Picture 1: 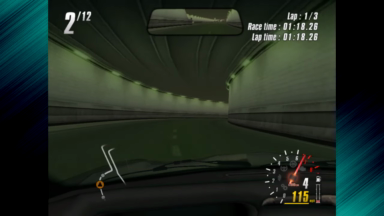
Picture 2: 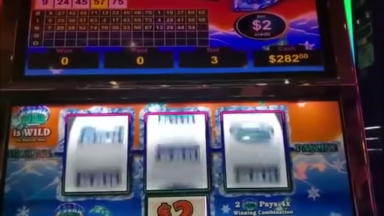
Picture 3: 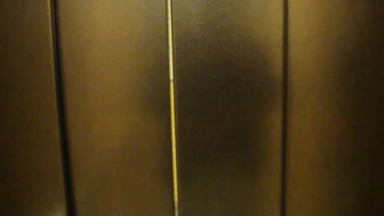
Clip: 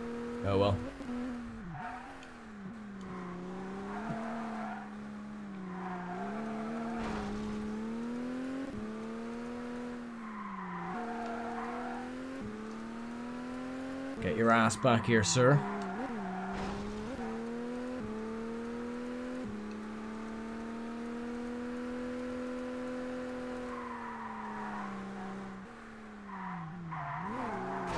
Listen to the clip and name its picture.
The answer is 1